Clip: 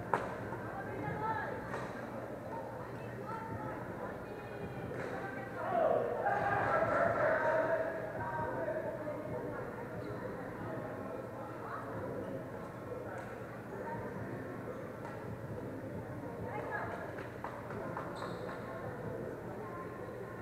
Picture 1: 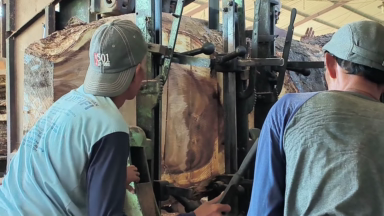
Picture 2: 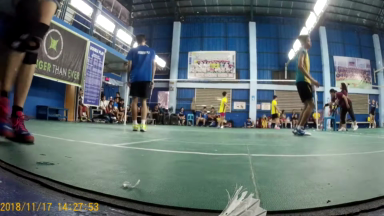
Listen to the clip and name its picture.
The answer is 2